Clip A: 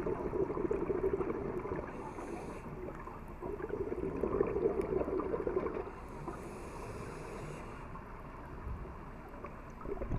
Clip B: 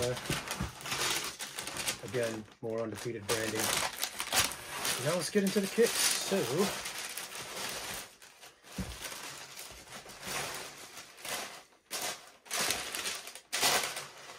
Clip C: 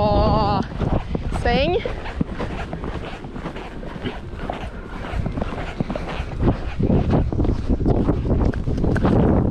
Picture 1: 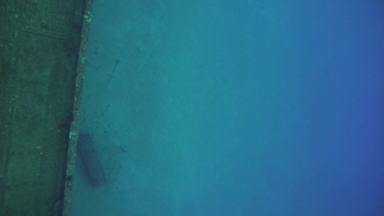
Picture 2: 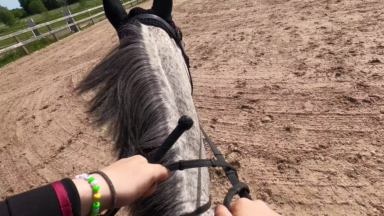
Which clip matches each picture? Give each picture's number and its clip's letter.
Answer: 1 A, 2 C